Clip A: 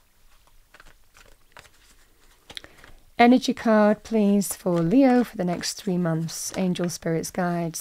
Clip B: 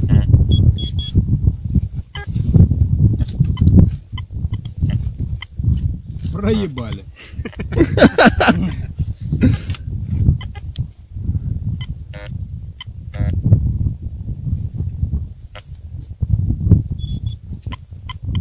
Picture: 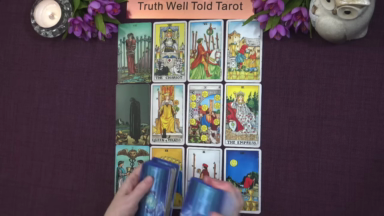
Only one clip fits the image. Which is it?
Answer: A